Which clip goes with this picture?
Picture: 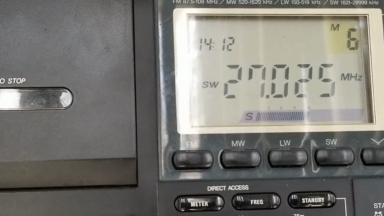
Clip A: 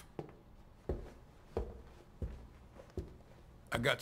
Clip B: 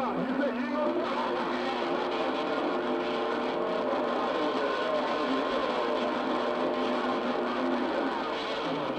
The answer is B